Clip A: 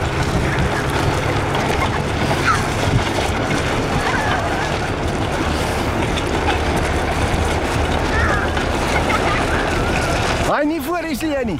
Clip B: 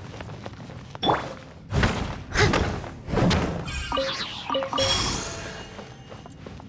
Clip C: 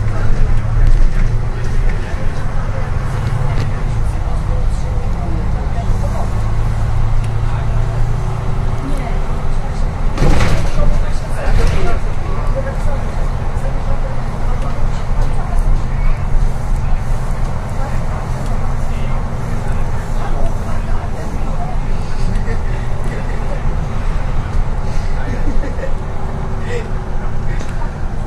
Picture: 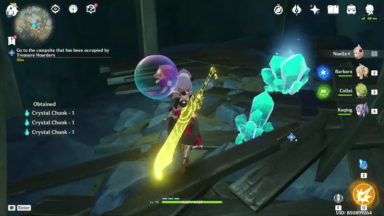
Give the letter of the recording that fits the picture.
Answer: B